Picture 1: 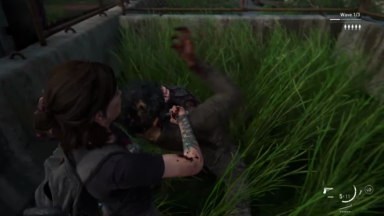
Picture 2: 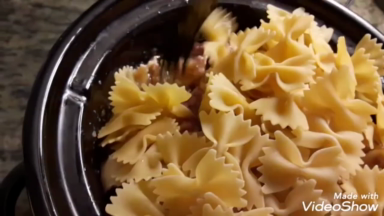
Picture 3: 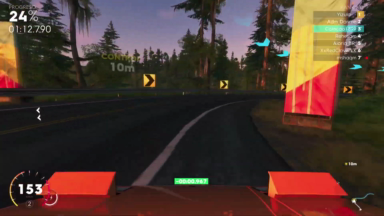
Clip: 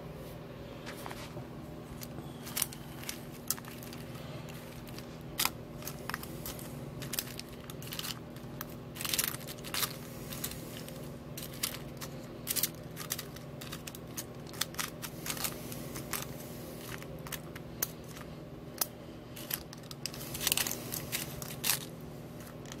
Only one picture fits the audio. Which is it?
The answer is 2